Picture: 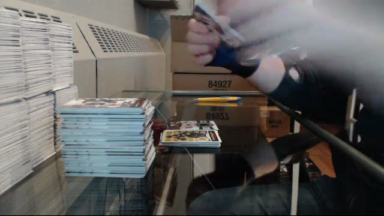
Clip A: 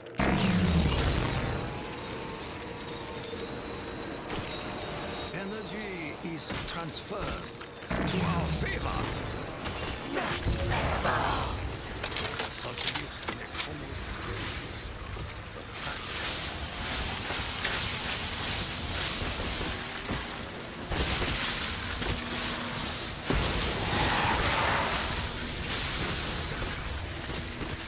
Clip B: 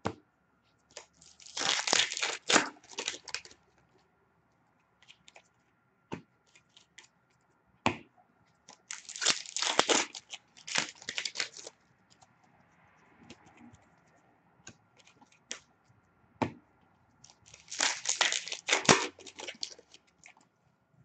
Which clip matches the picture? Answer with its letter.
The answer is B